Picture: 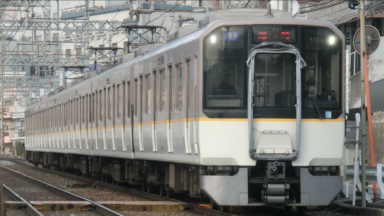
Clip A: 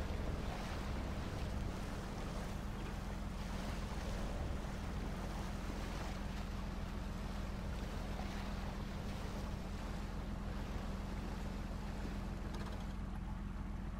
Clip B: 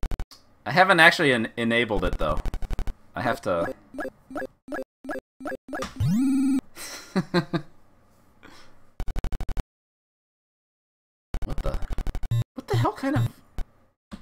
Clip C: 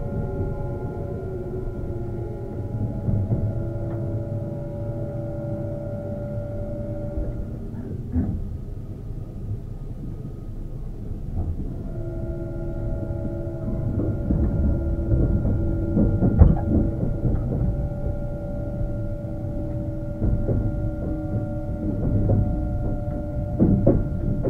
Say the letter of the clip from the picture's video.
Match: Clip C